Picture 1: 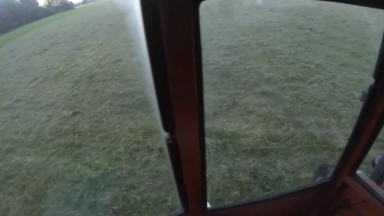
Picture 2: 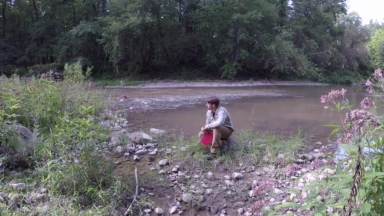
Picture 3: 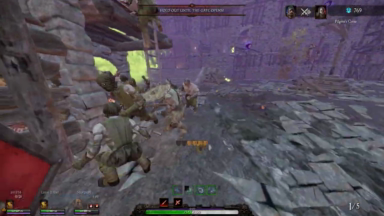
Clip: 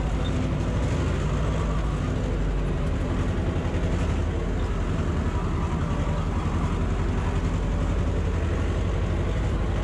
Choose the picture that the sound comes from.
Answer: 1